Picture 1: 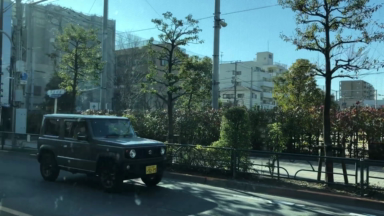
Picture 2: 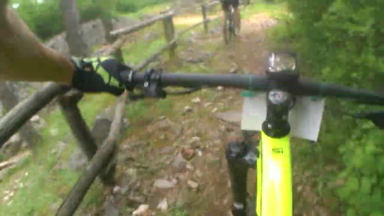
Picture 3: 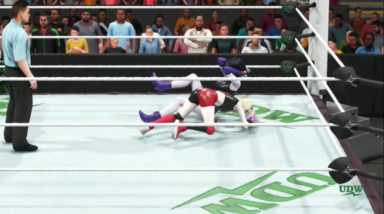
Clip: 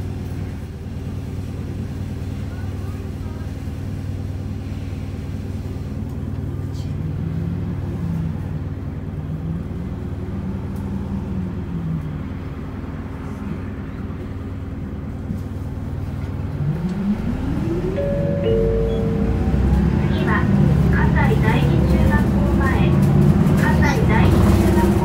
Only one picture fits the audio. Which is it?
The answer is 1